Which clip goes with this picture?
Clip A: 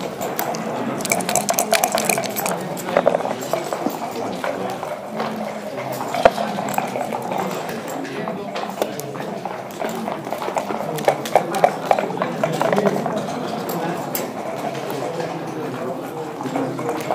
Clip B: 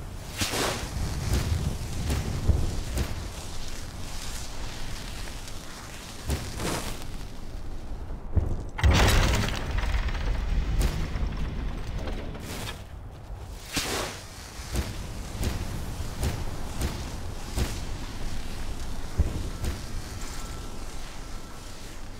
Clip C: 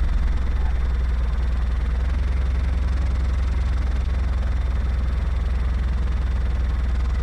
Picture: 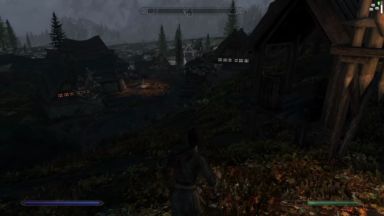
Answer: B